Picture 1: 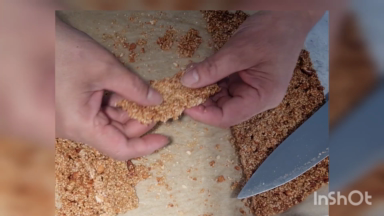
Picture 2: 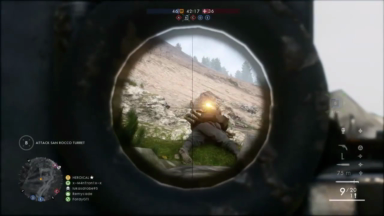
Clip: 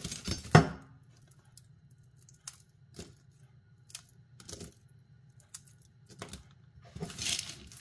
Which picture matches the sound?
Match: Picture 1